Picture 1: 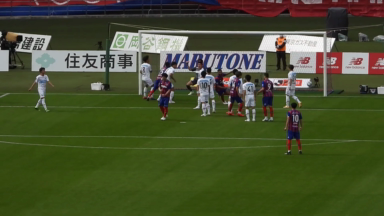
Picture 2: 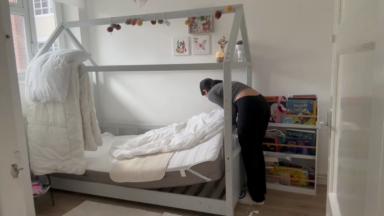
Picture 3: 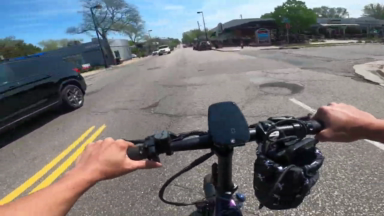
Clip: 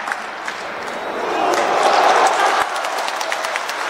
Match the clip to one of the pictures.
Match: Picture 1